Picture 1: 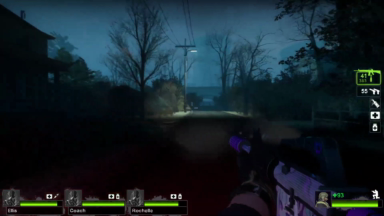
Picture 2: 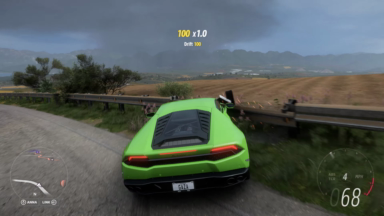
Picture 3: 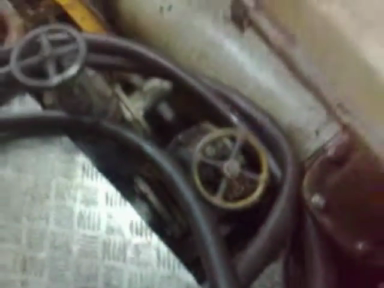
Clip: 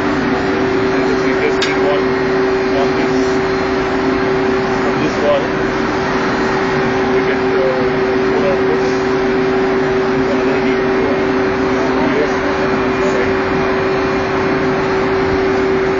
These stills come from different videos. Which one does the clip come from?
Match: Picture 3